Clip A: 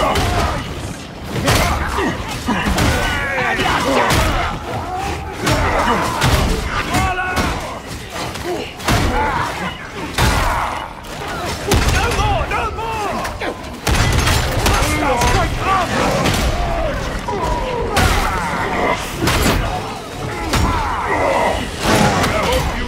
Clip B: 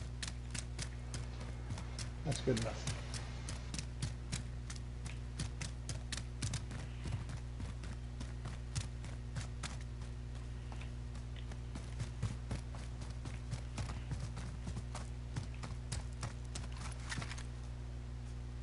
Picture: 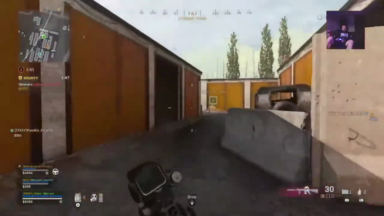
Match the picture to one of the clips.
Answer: B